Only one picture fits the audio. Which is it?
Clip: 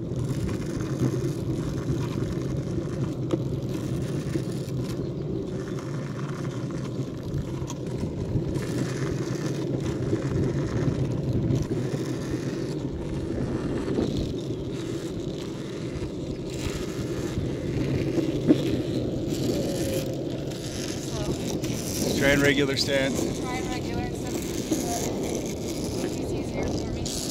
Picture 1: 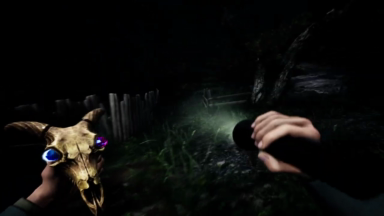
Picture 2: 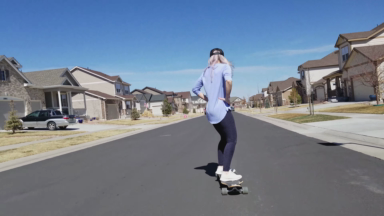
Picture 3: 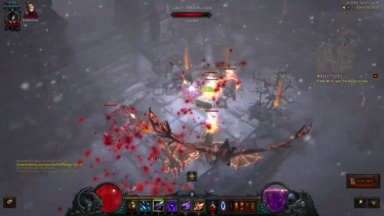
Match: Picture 2